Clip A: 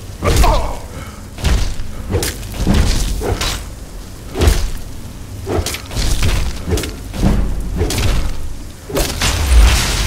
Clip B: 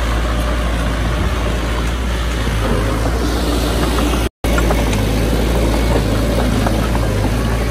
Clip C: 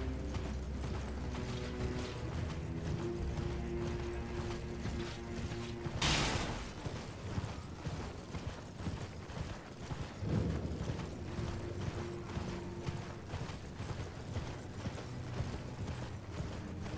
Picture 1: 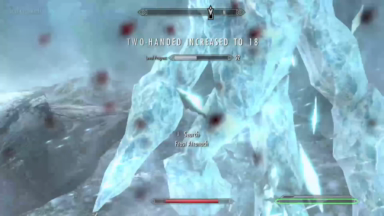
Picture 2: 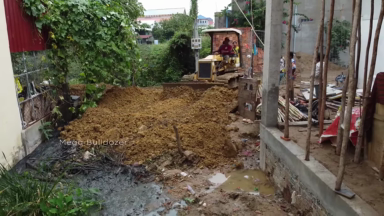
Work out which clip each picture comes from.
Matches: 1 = A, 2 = B